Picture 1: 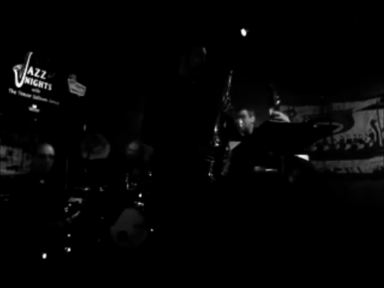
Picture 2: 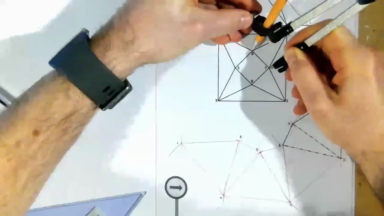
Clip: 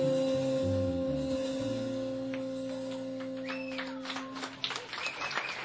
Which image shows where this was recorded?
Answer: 1